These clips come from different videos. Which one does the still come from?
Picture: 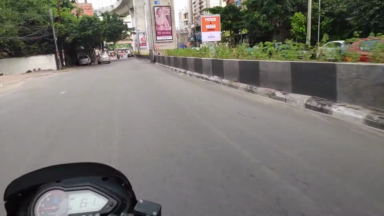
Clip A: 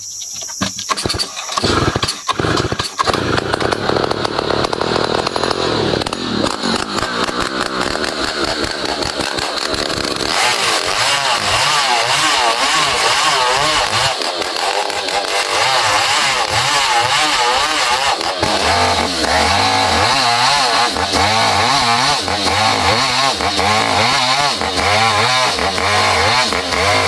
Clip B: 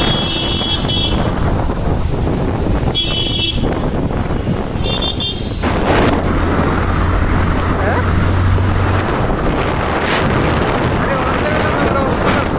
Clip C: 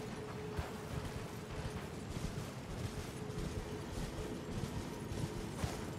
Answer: B